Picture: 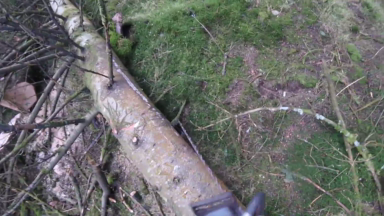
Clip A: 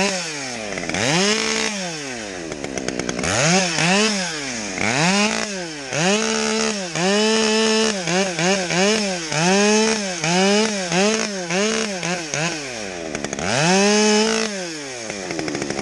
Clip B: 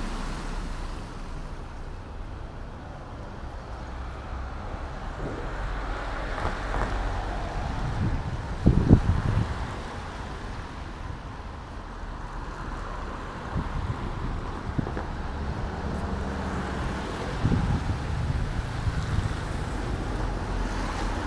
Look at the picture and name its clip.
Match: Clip A